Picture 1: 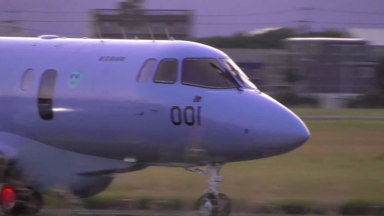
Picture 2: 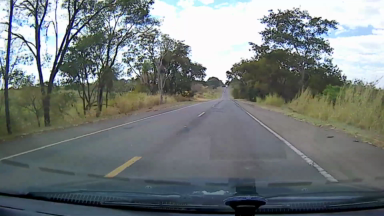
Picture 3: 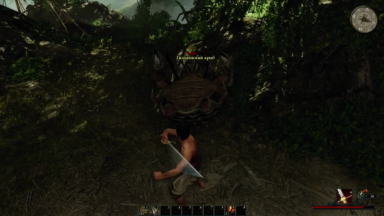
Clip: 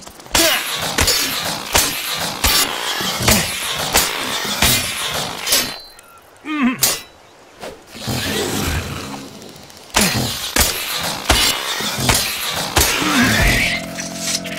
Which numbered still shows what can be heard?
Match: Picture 3